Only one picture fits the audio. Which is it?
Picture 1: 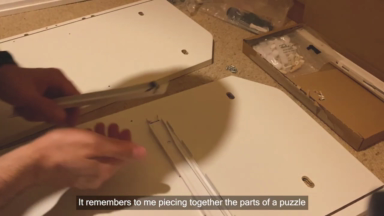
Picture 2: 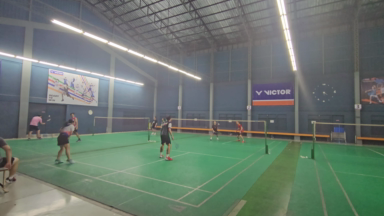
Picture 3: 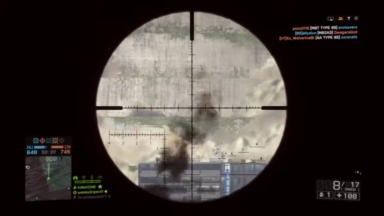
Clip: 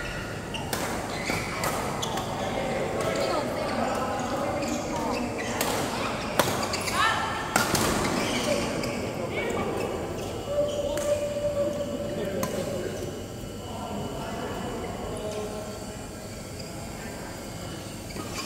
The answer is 2